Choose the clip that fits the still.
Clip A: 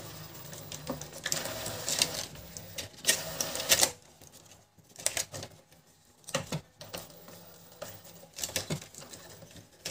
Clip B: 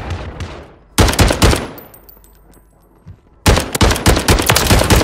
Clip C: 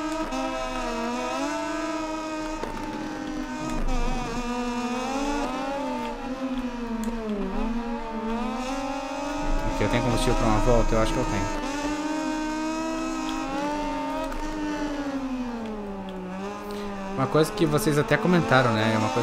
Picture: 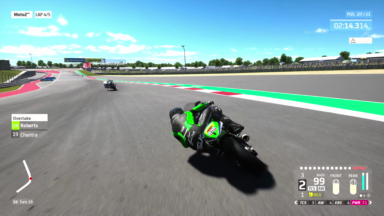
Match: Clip C